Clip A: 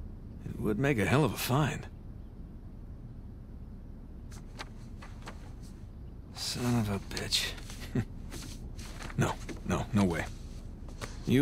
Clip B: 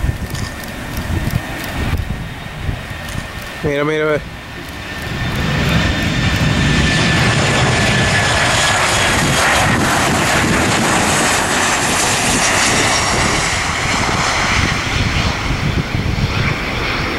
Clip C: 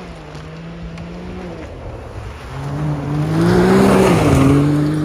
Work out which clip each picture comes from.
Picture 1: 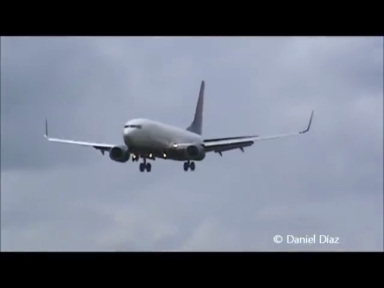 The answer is B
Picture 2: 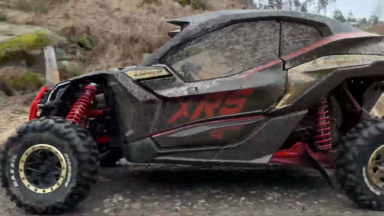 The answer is C